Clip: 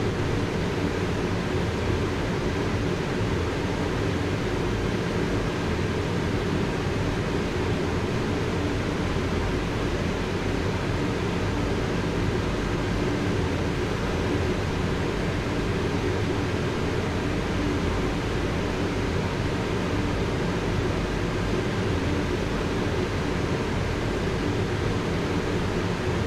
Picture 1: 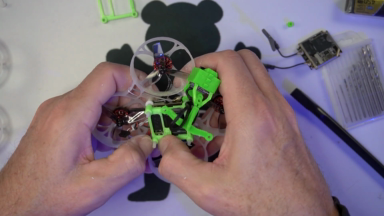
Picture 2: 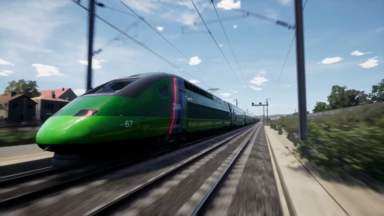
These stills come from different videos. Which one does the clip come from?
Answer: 2